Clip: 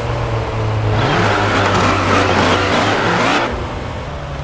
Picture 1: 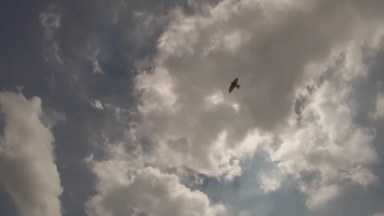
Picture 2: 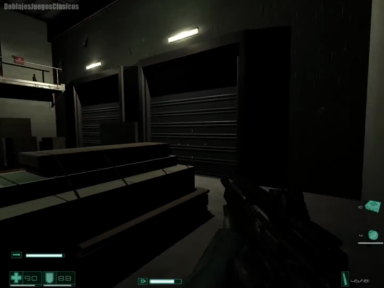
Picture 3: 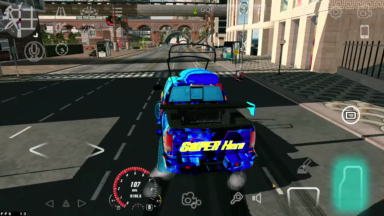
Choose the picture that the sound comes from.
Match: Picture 3